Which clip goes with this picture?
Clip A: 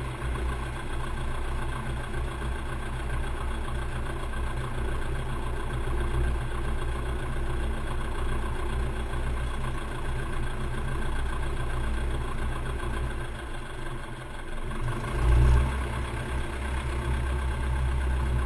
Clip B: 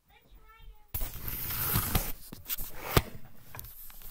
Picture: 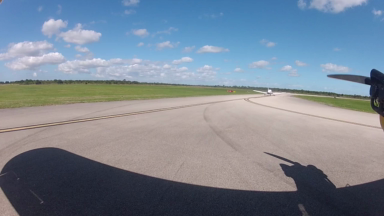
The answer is A